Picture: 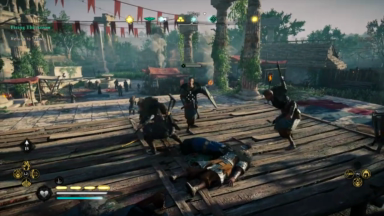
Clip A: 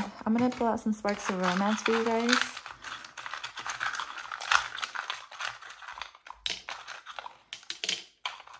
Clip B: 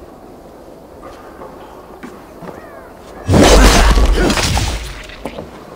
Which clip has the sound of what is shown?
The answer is B